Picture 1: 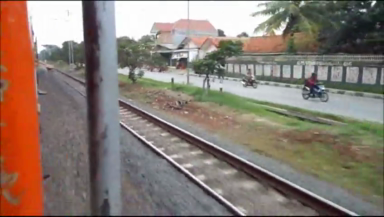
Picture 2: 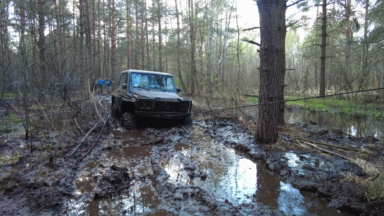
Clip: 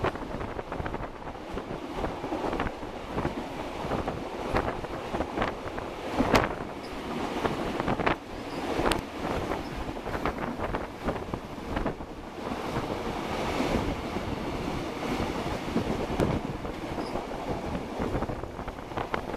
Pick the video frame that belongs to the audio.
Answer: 1